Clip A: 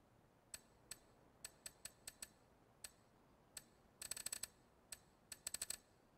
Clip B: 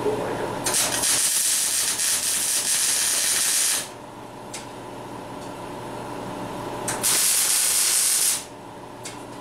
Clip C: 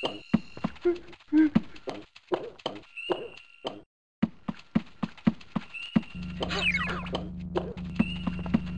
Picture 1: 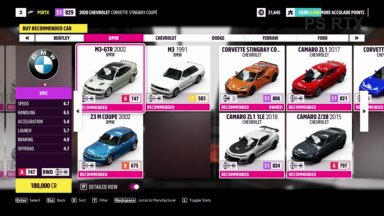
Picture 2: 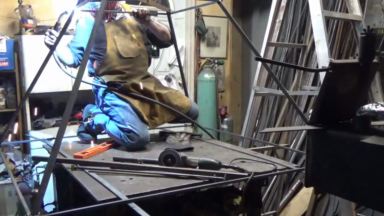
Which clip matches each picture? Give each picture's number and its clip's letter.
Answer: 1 A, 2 B